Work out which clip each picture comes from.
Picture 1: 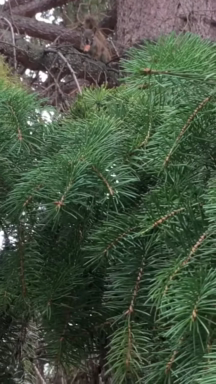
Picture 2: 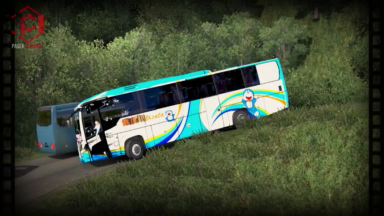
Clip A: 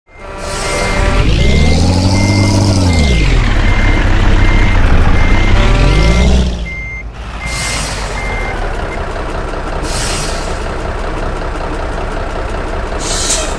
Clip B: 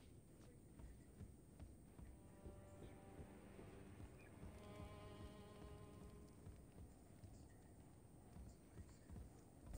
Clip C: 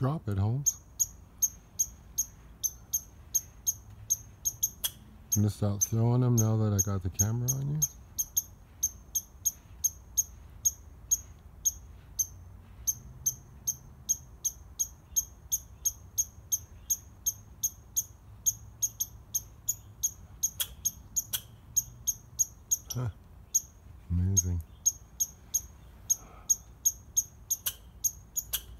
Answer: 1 C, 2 A